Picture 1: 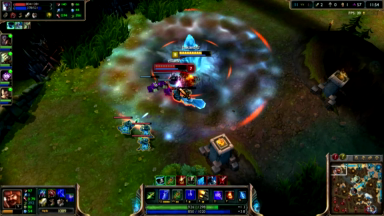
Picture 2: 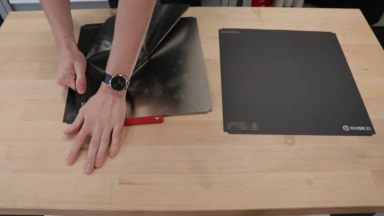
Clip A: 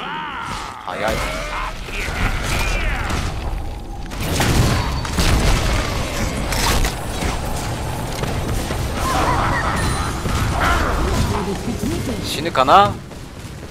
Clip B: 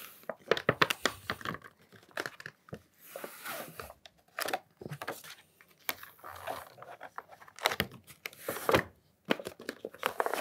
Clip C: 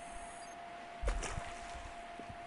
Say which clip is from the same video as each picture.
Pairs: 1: A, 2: B